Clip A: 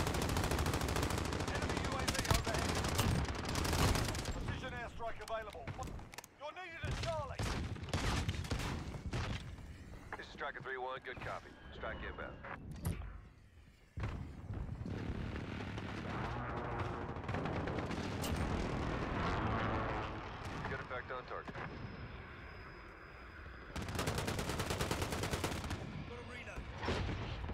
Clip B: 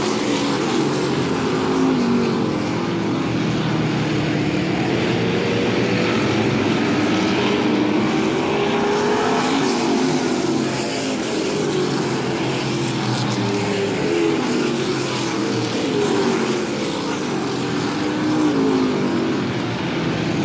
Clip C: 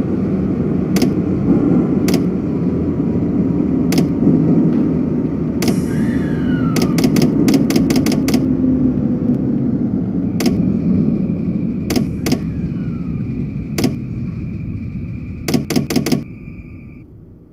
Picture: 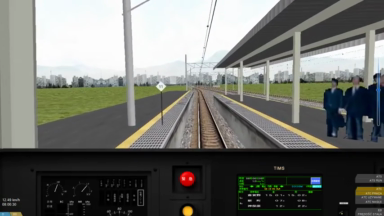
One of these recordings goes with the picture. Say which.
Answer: C